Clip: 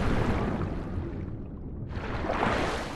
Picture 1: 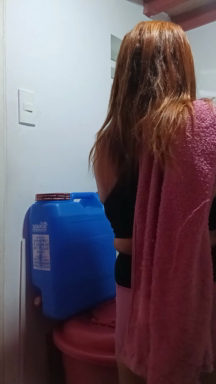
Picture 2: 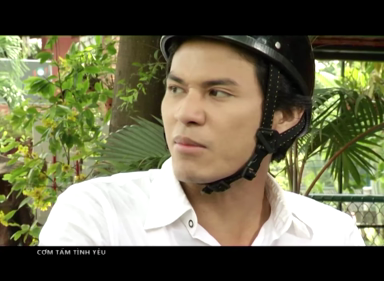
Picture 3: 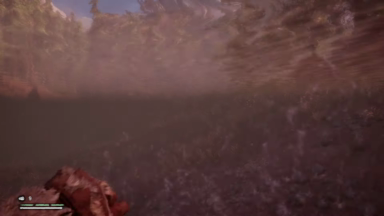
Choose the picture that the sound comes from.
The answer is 3